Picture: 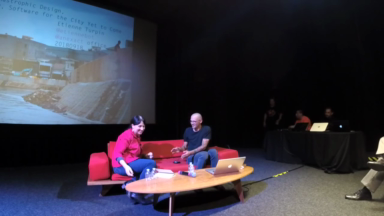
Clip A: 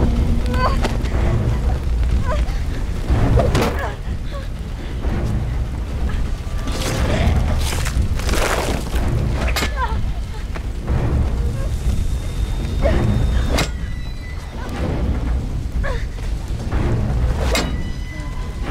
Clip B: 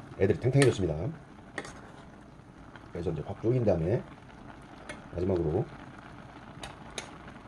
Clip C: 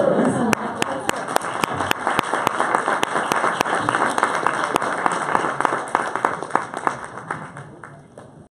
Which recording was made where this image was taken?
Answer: C